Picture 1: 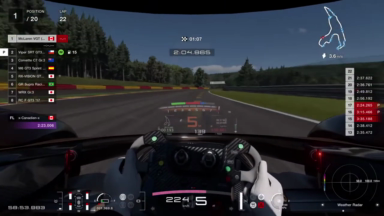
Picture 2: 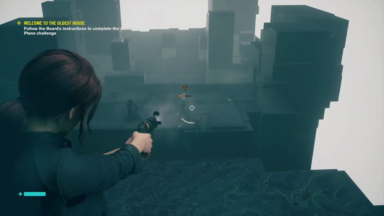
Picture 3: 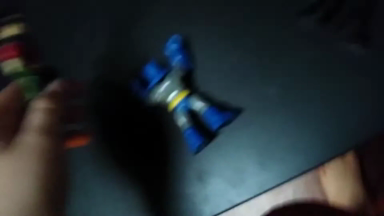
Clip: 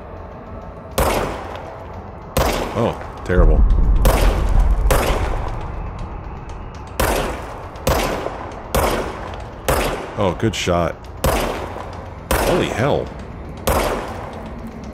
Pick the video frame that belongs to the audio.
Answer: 2